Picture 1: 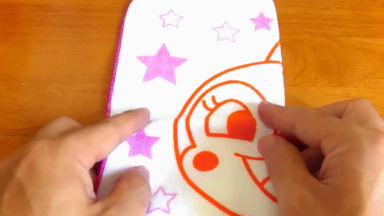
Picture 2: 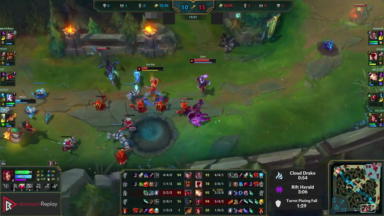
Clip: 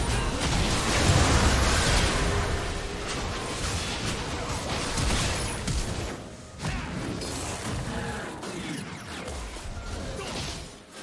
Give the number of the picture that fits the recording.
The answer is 2